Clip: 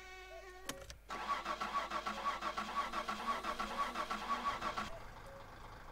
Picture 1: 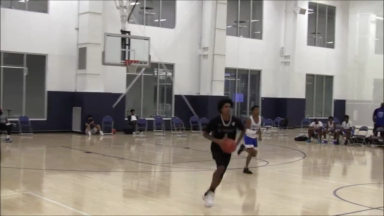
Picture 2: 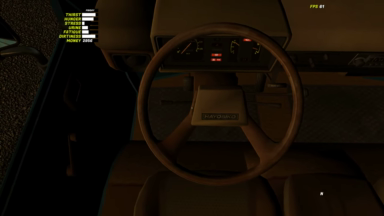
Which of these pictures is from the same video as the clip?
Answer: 2